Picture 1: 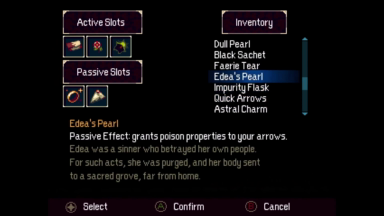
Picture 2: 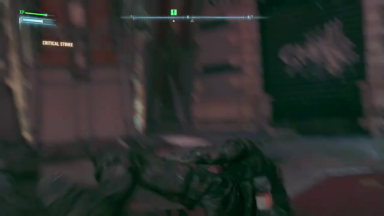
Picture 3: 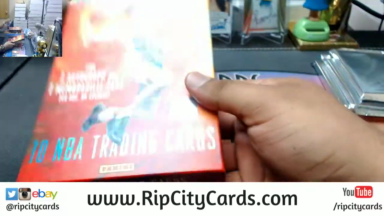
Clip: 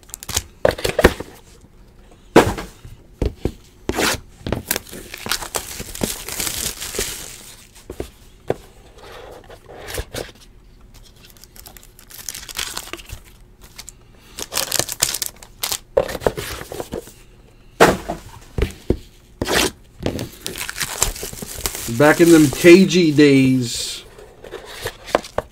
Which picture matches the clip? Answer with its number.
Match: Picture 3